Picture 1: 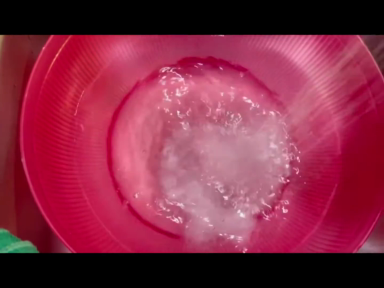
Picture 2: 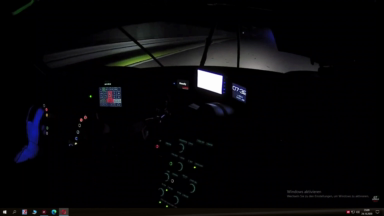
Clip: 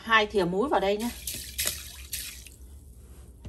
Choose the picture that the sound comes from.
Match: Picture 1